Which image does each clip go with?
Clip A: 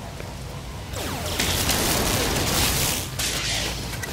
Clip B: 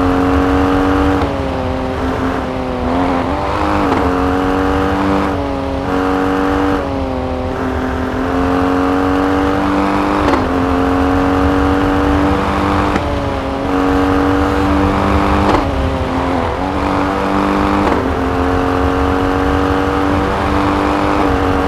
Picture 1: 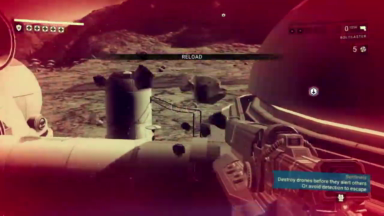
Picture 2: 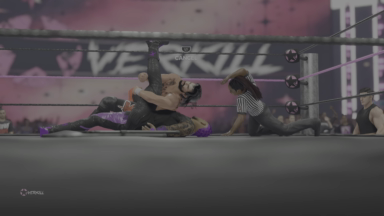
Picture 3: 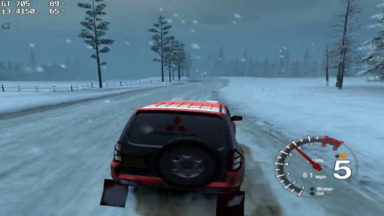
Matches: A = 1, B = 3